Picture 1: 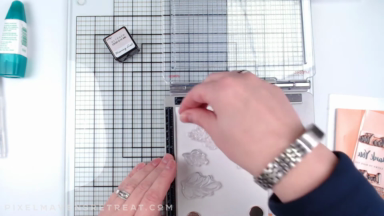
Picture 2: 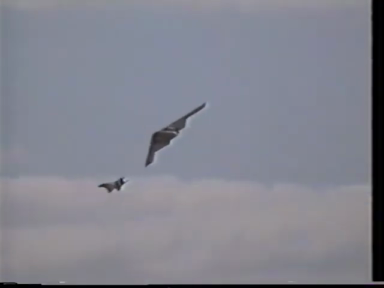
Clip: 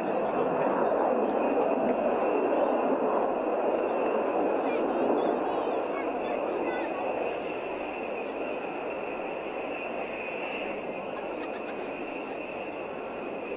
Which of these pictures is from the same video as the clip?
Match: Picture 2